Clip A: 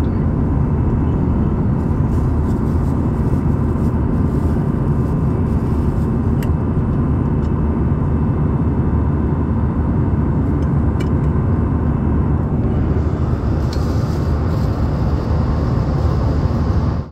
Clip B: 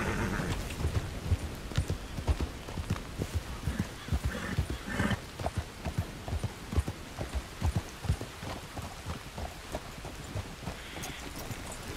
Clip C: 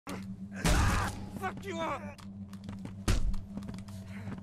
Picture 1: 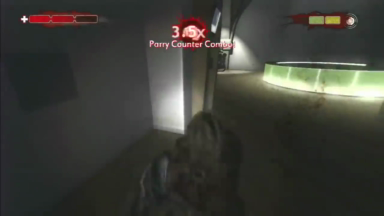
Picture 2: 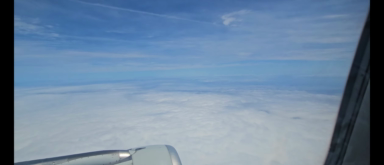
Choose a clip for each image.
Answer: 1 C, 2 A